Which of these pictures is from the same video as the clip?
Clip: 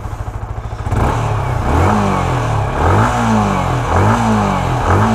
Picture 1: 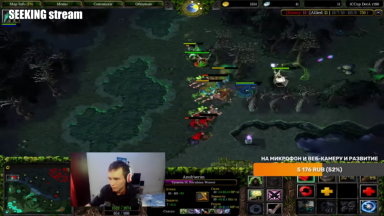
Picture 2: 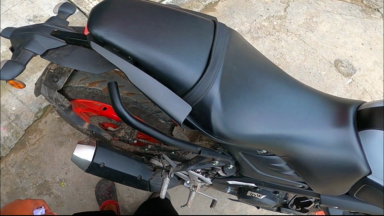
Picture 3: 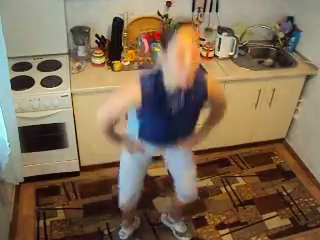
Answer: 2